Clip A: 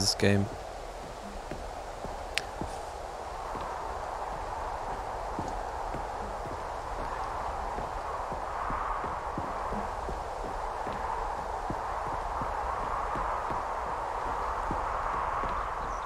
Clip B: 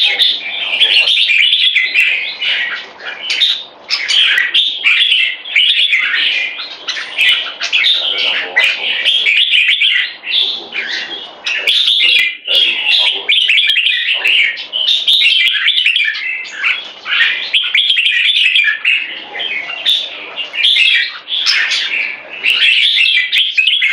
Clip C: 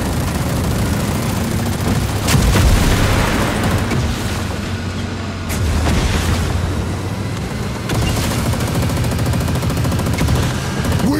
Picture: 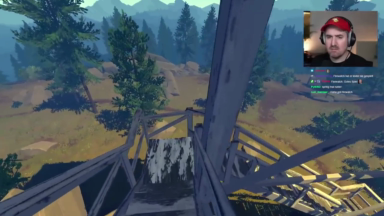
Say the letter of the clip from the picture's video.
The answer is A